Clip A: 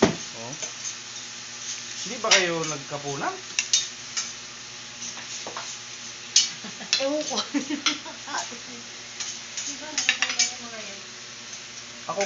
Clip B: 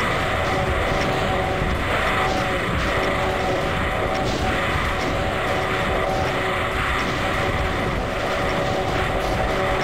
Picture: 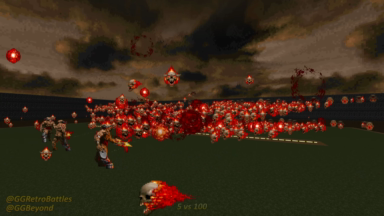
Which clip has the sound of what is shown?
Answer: B